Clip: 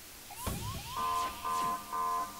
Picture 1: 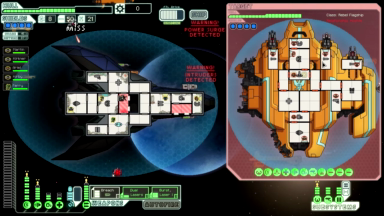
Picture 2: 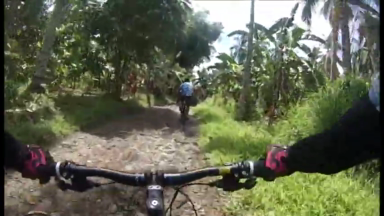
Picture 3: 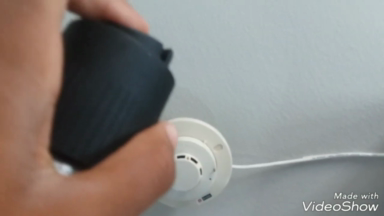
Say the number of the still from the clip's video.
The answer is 1